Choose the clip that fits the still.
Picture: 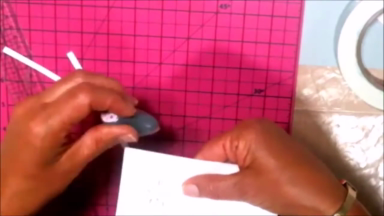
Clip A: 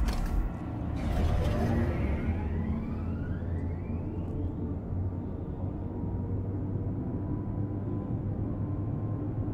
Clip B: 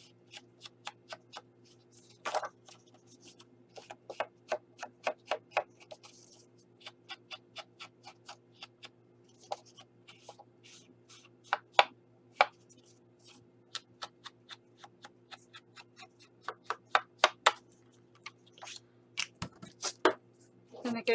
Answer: B